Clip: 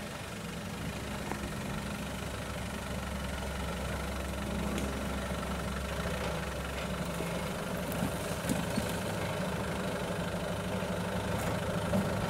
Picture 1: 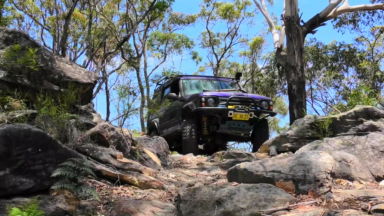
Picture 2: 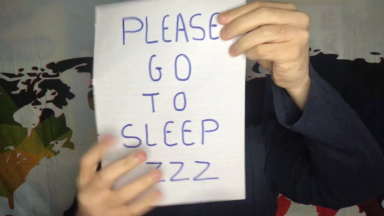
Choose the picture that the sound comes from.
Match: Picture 1